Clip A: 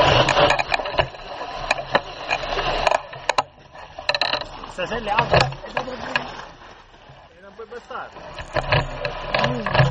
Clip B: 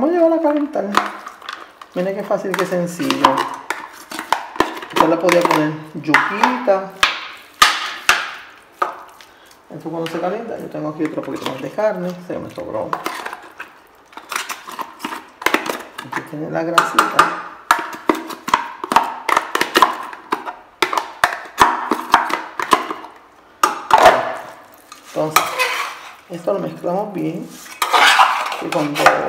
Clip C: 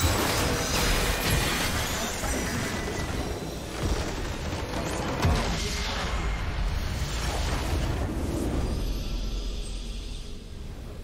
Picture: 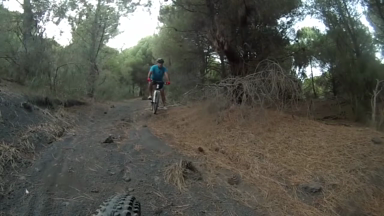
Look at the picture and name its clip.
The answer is A